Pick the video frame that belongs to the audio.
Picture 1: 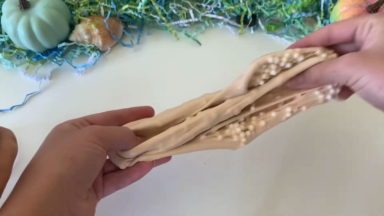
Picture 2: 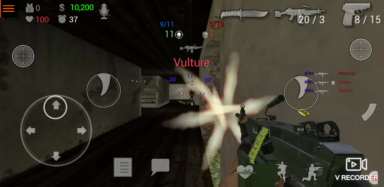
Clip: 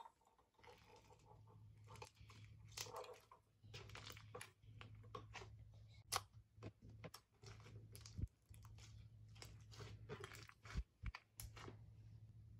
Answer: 1